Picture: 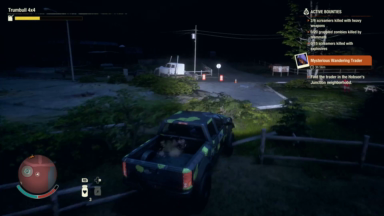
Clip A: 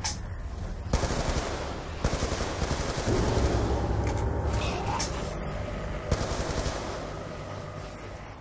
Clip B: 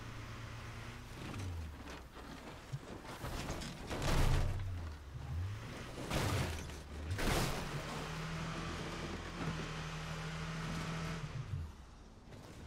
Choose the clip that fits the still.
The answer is B